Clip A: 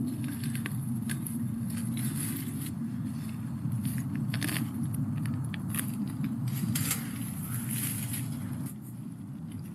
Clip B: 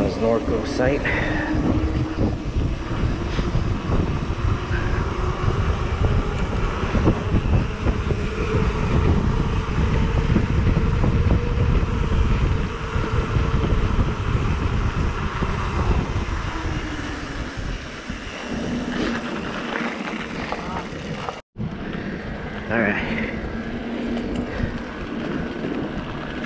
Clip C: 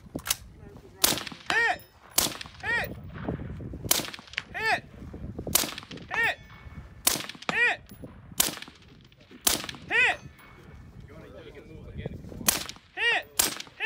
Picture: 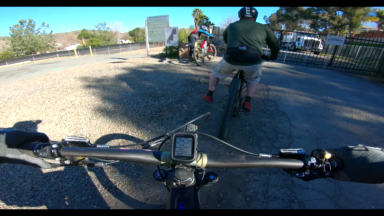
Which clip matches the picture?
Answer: B